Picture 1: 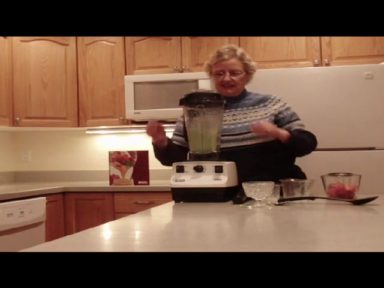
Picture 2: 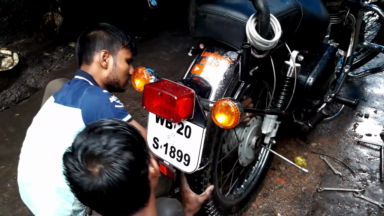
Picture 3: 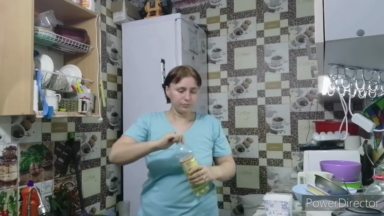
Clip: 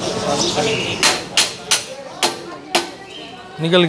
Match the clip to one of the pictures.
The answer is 2